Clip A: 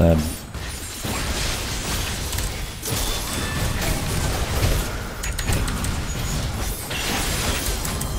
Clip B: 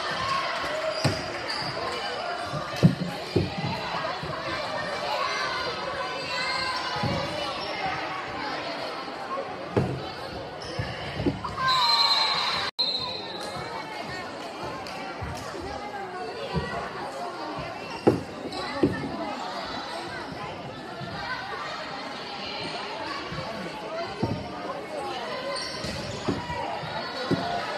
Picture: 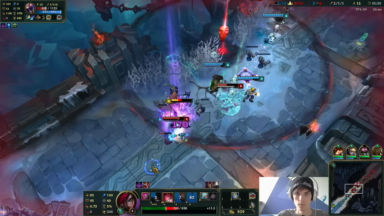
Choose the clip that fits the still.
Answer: A